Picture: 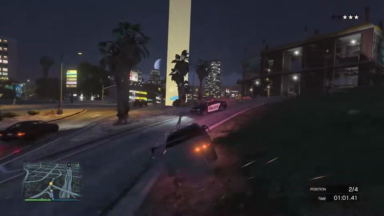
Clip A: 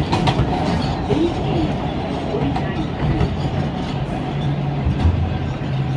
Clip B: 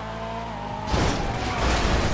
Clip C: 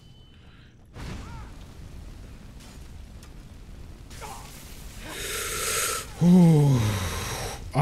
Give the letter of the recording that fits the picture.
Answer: B